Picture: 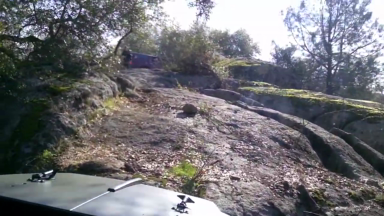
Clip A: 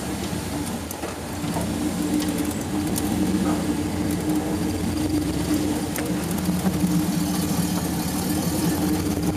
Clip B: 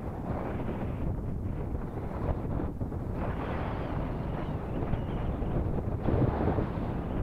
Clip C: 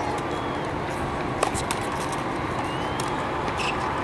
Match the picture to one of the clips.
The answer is A